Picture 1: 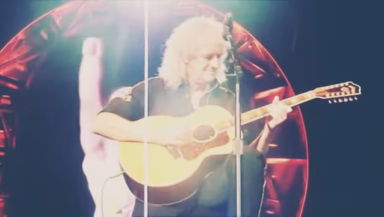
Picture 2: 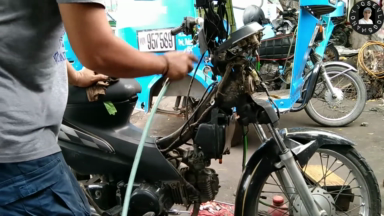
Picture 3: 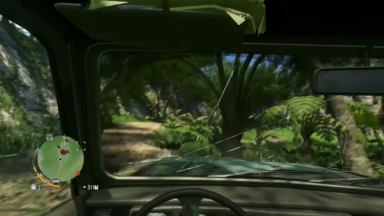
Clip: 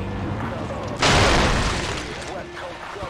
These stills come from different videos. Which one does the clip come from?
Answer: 3